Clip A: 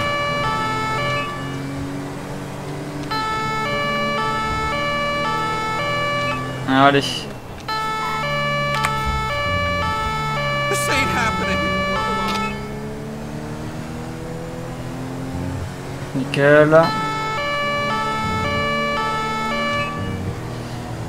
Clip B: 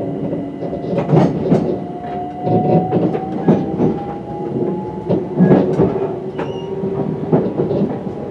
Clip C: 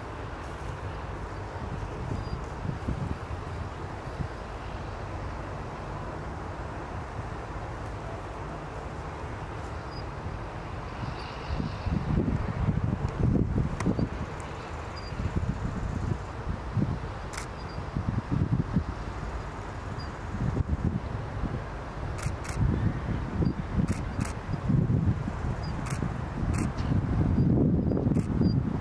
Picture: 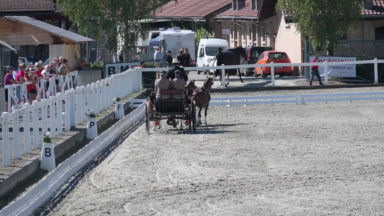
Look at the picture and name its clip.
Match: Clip C